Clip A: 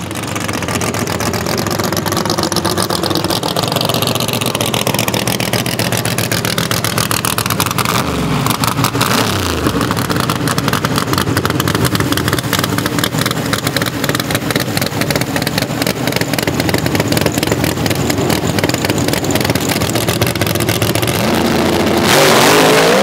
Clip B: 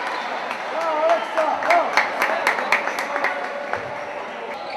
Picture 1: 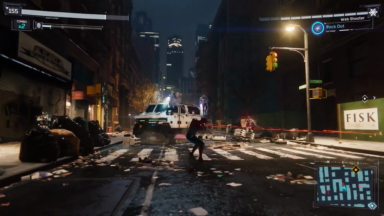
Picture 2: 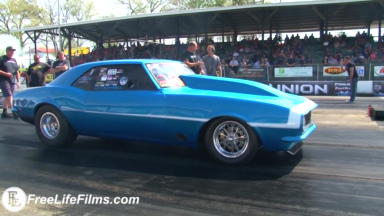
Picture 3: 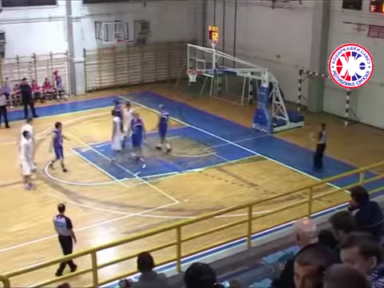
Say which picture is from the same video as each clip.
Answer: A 2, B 3